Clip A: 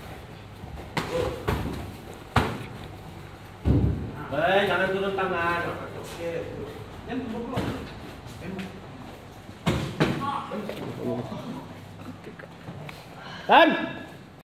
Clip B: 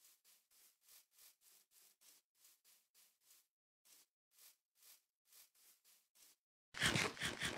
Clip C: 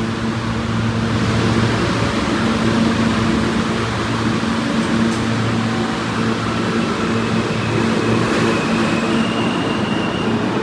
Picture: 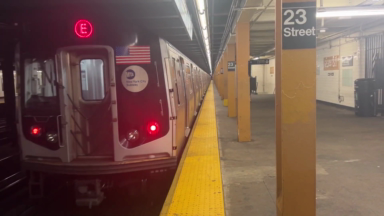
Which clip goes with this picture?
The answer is C